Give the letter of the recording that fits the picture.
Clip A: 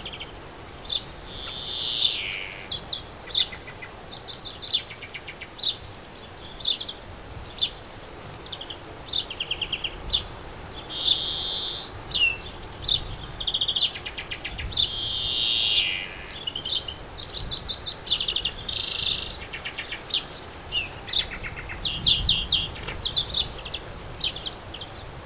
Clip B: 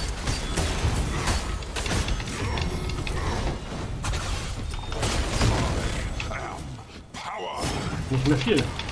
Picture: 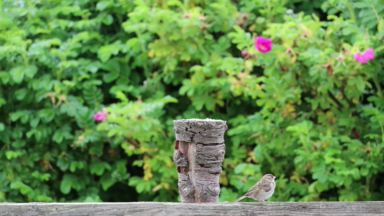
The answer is A